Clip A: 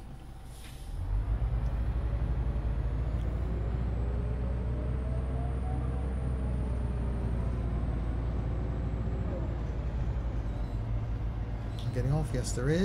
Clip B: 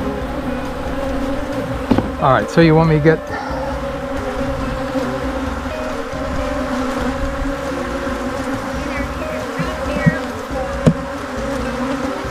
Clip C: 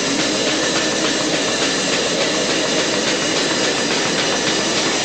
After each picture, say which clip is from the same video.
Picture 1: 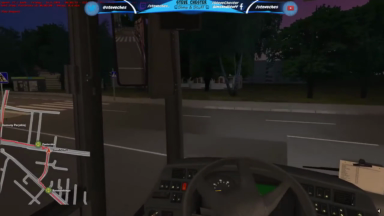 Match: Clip A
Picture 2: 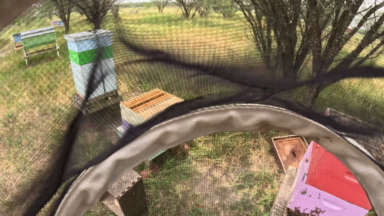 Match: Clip B